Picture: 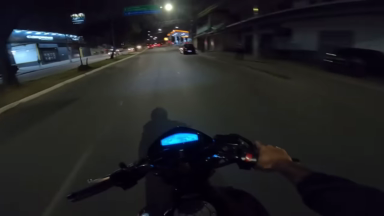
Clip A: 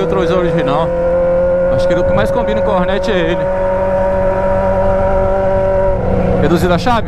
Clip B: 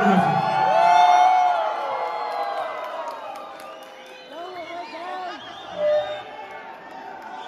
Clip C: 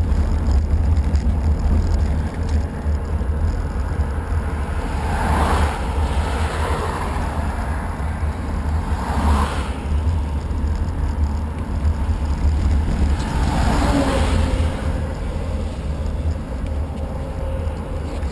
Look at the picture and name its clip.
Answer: A